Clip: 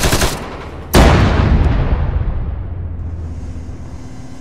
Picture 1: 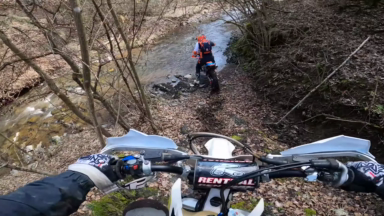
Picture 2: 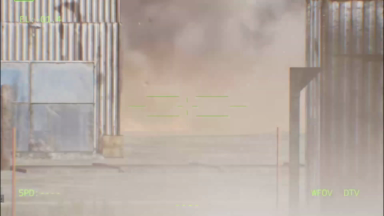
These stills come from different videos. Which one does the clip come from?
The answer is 2